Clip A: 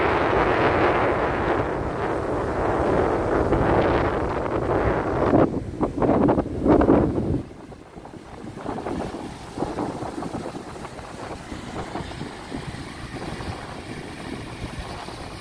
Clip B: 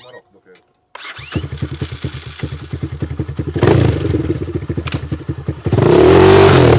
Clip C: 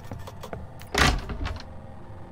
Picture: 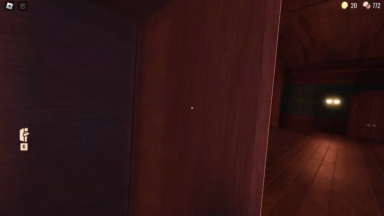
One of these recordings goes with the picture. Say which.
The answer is C